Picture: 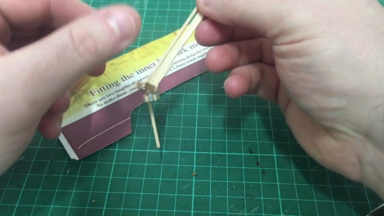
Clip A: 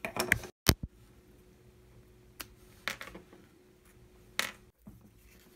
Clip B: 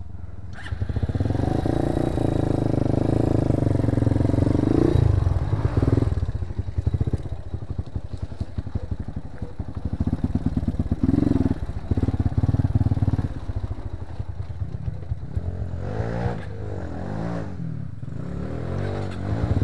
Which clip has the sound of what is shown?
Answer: A